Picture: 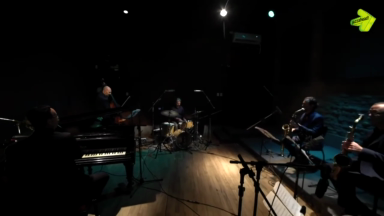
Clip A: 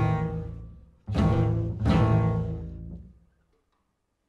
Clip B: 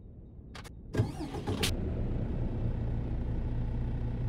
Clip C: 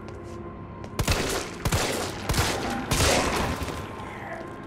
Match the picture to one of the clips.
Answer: A